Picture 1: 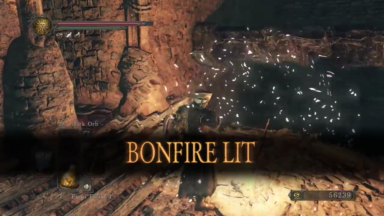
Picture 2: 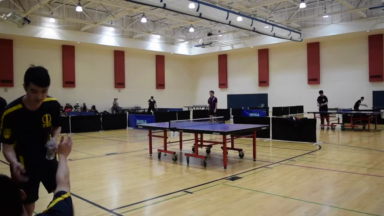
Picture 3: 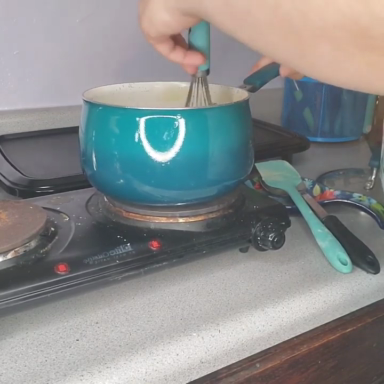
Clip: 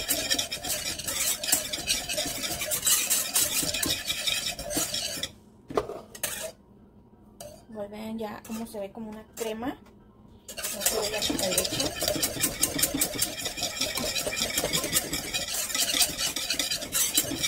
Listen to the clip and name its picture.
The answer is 3